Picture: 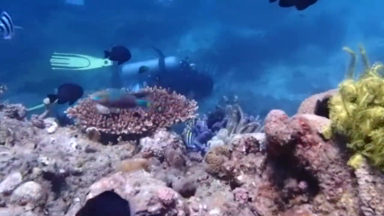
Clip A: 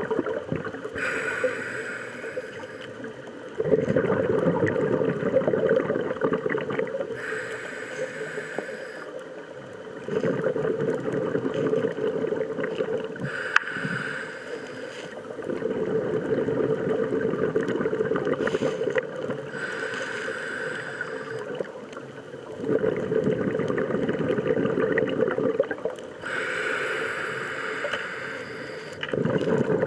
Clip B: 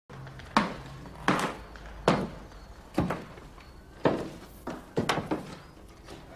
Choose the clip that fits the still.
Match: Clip A